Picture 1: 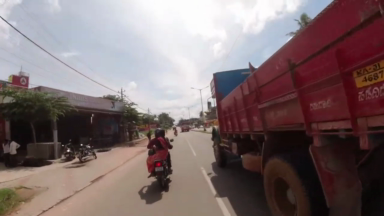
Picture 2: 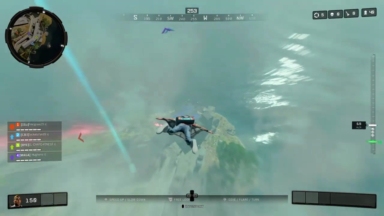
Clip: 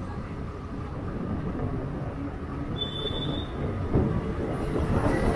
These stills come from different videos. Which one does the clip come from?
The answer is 1